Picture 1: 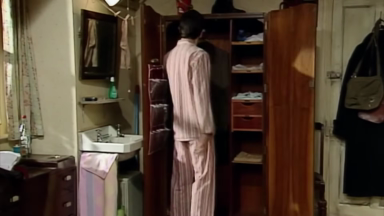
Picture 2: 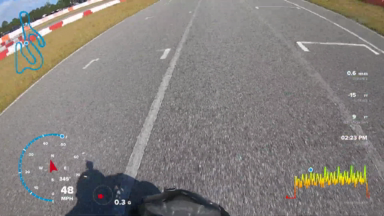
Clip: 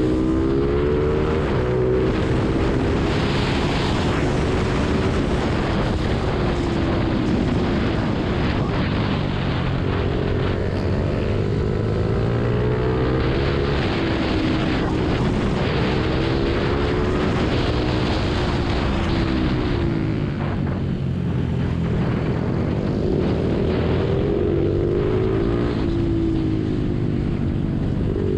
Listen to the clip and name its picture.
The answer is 2